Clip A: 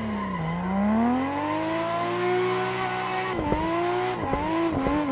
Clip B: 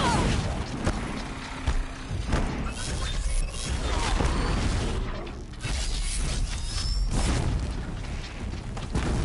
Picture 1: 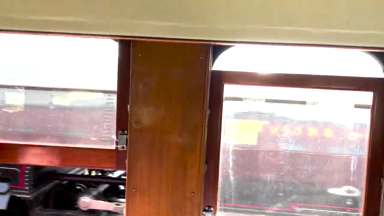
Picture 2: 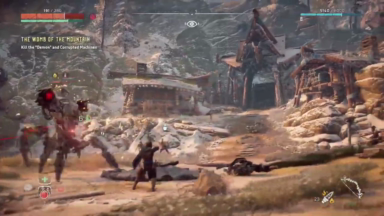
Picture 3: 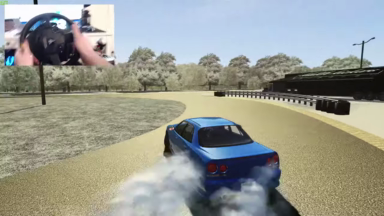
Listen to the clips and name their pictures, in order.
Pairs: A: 3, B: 2